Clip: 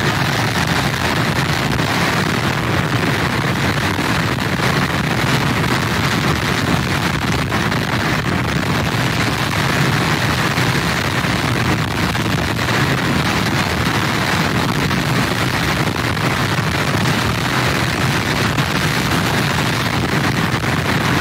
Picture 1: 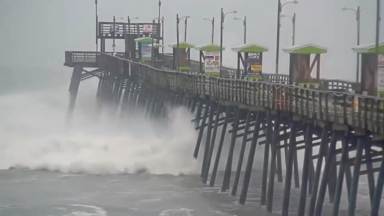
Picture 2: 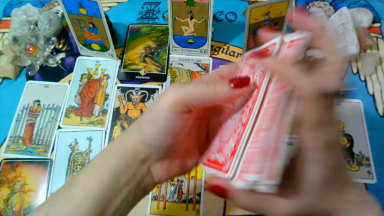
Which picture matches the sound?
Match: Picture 1